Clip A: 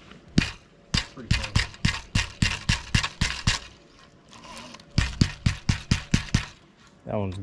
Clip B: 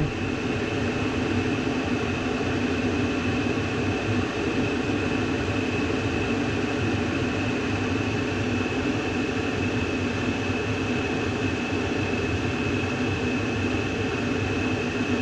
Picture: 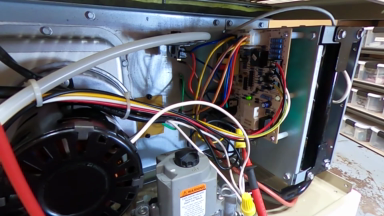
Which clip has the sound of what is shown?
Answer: B